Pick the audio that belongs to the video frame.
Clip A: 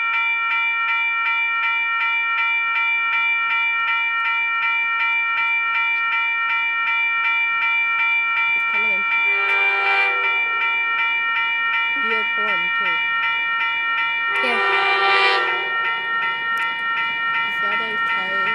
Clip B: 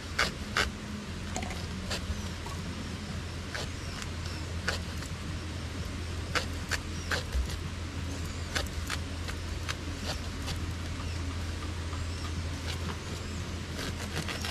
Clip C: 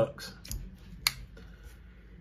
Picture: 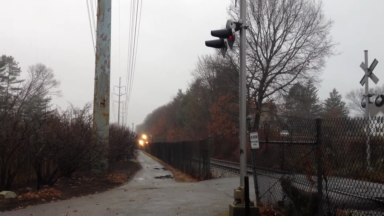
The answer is A